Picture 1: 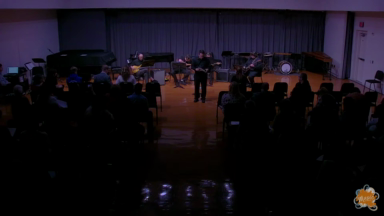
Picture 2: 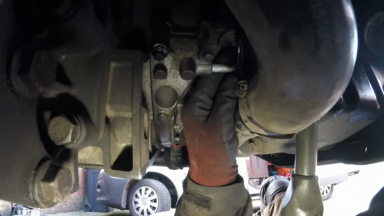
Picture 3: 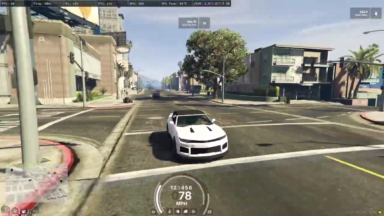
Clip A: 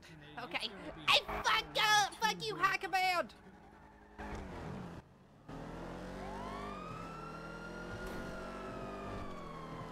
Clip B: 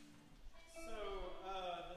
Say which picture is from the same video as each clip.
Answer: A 3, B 1